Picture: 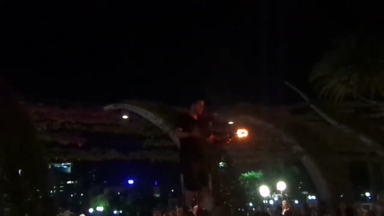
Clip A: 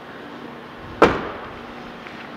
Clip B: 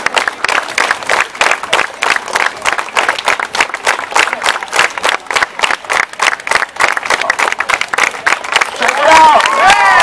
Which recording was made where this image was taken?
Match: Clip B